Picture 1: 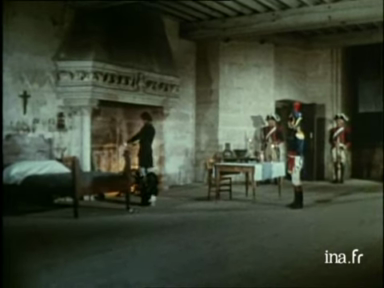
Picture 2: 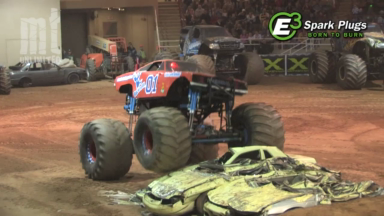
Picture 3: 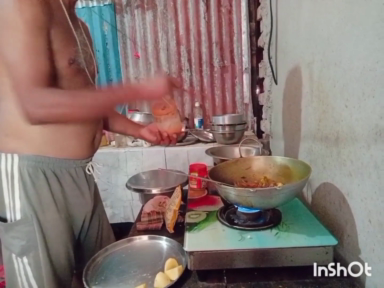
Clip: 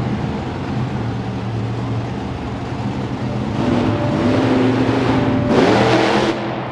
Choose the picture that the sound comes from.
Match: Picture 2